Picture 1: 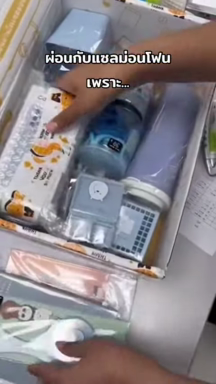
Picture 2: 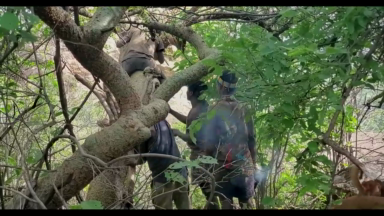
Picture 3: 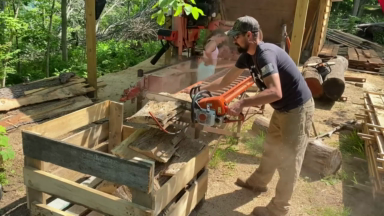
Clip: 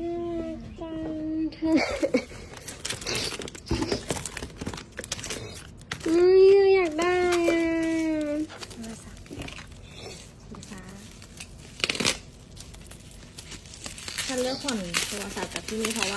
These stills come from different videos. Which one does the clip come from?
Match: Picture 1